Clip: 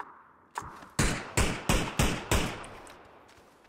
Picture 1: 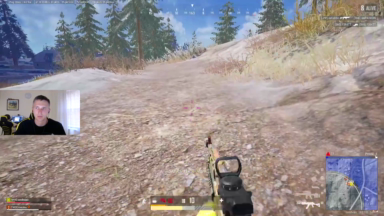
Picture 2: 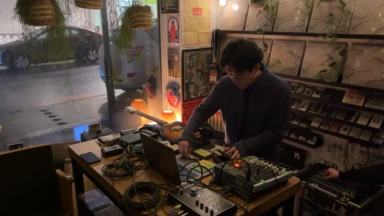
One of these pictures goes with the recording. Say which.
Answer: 1